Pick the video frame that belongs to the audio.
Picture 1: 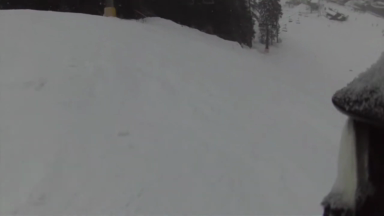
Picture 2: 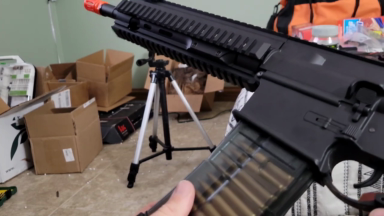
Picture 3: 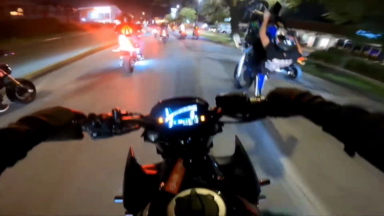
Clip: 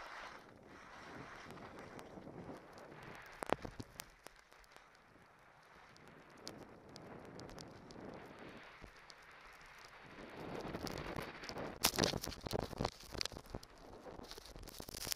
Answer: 1